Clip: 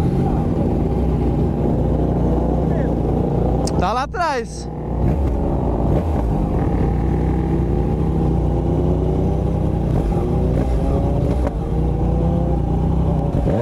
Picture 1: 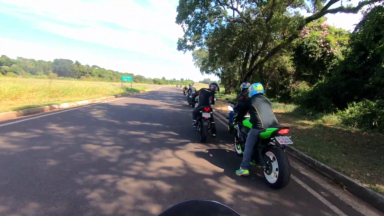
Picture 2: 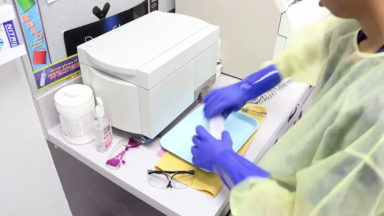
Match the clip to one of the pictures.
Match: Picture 1